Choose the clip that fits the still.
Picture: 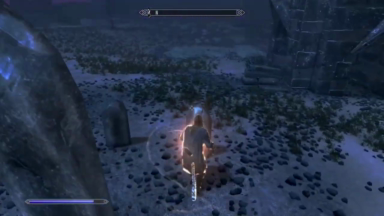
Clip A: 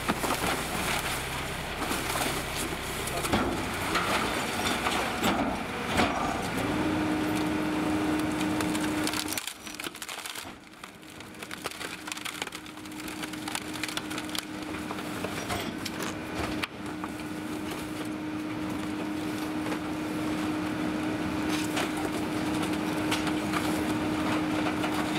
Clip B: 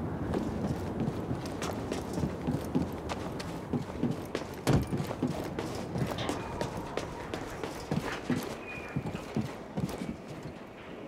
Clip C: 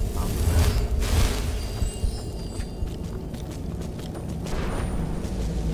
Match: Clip C